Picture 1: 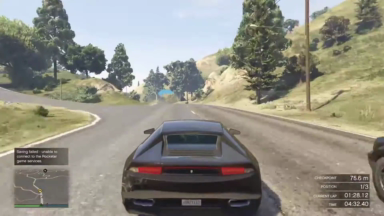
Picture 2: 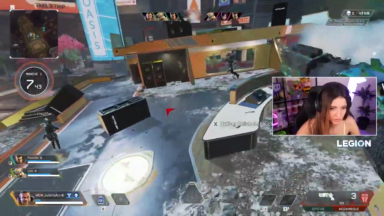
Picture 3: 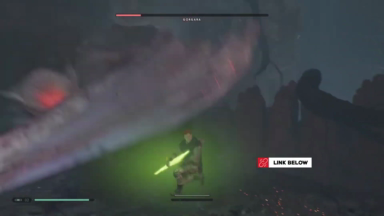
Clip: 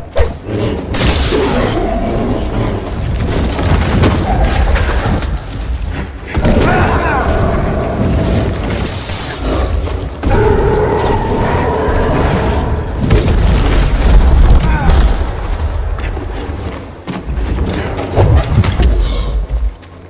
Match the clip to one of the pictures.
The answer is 3